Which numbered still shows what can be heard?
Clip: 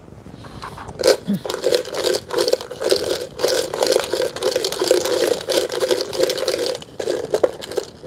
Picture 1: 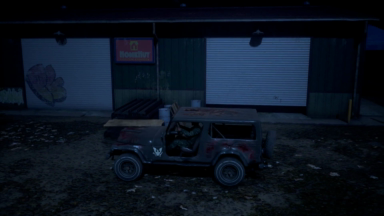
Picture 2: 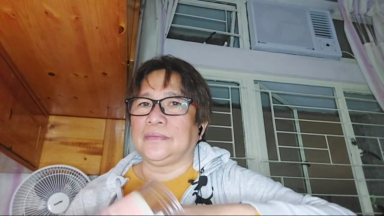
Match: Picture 2